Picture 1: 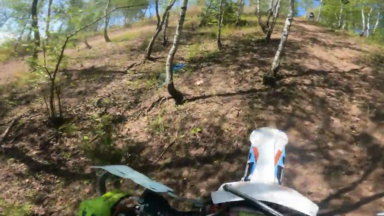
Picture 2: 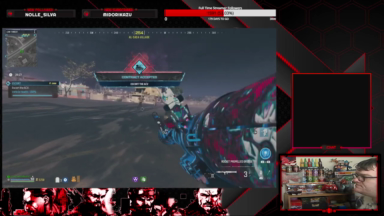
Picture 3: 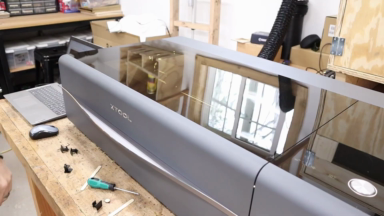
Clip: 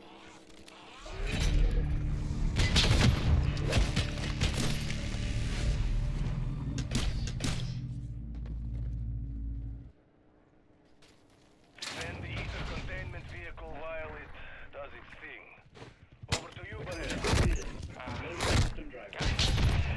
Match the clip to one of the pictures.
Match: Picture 2